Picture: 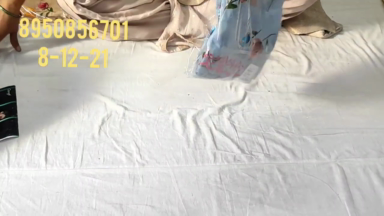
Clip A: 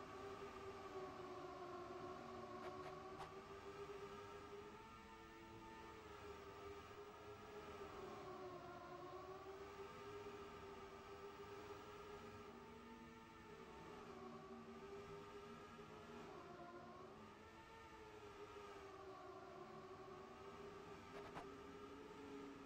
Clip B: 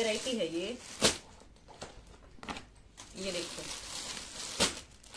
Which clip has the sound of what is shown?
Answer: B